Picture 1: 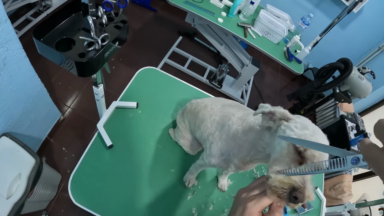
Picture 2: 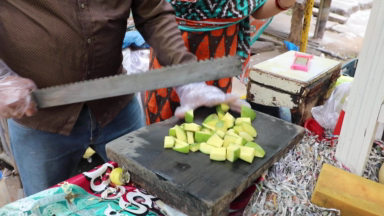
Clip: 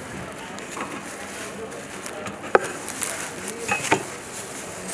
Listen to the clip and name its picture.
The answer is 2